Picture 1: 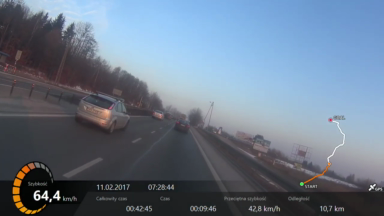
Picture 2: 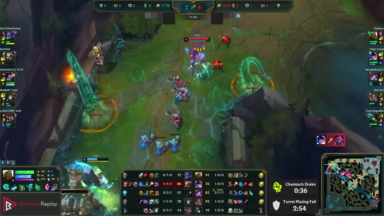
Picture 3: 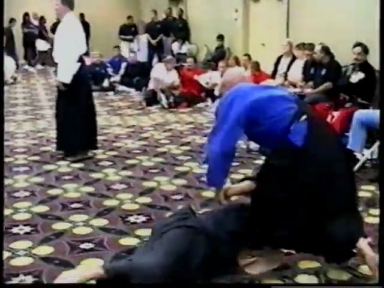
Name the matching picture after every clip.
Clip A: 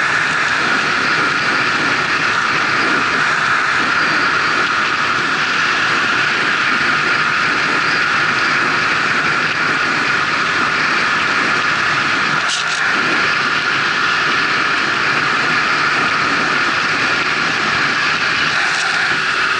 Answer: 1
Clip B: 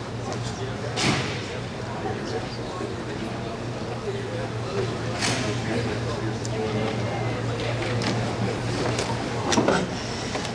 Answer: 3